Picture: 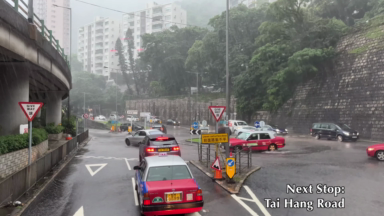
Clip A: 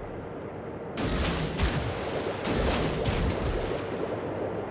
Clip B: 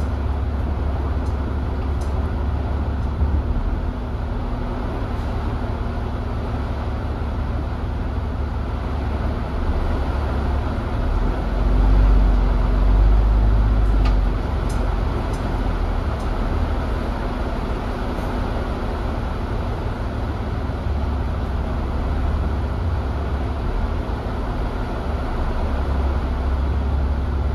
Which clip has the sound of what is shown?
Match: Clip B